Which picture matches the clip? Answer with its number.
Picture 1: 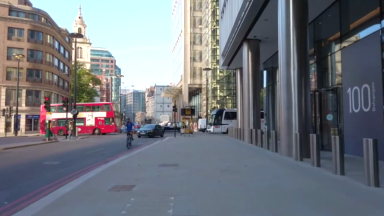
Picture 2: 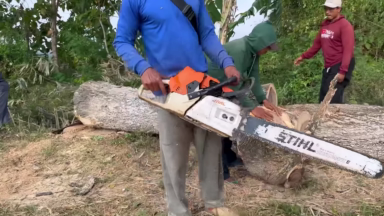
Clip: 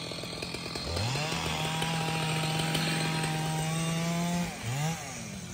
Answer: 2